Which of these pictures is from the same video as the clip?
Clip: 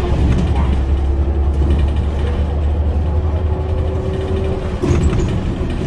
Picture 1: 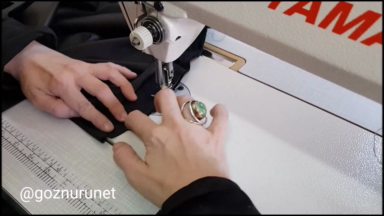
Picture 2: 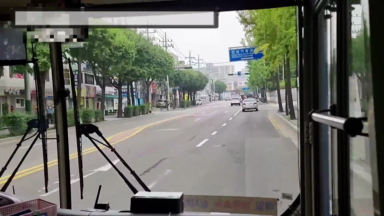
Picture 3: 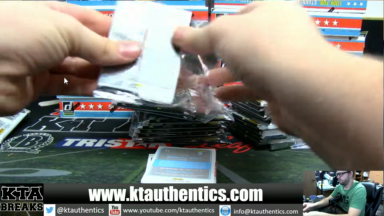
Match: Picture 2